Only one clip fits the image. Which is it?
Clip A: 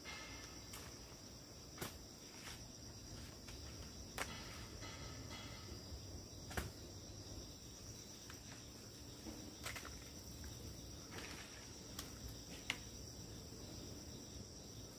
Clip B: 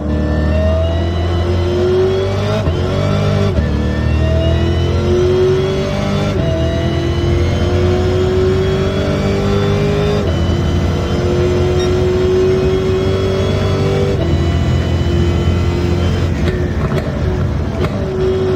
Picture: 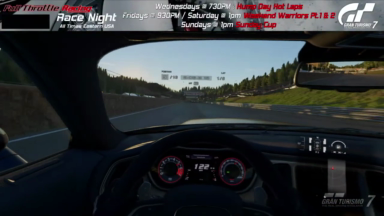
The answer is B